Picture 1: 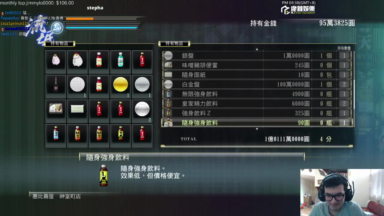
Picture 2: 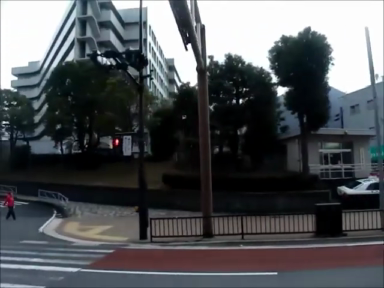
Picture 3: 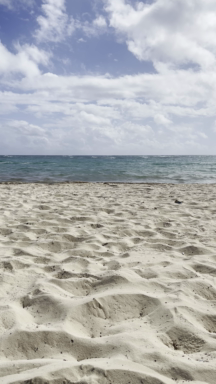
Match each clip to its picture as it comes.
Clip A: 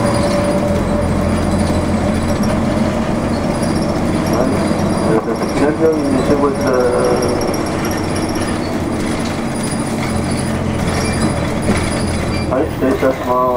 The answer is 2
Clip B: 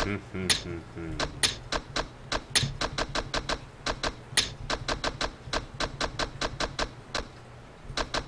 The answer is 1